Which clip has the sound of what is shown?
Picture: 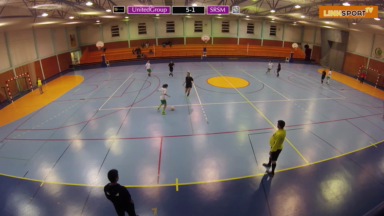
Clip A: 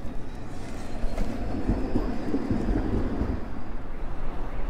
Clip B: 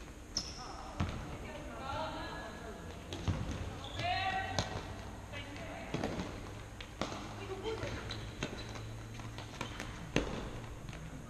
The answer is B